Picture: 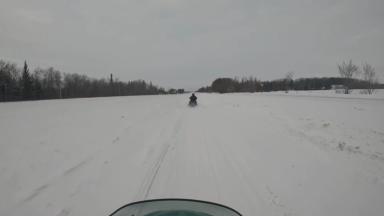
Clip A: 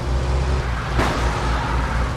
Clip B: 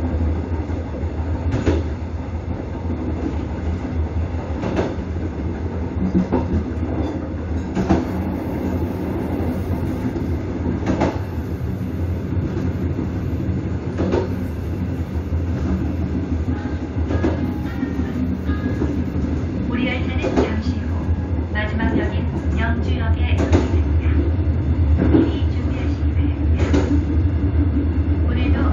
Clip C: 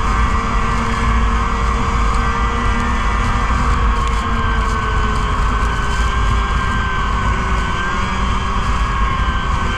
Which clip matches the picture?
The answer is C